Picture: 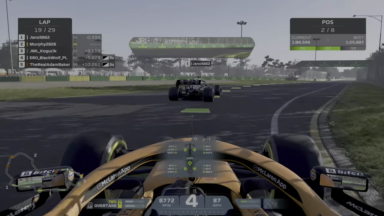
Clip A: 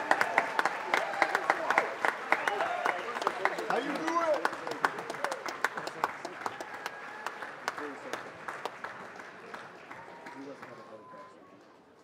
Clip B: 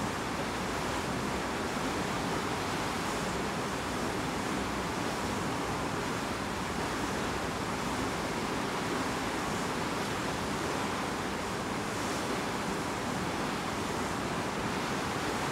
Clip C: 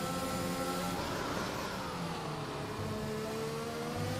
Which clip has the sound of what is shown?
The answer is C